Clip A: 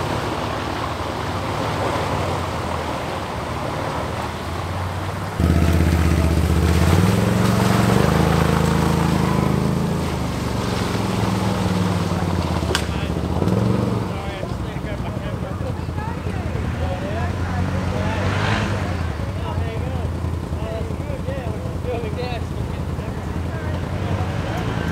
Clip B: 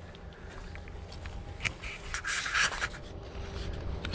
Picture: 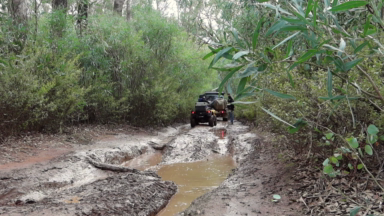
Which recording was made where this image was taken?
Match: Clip A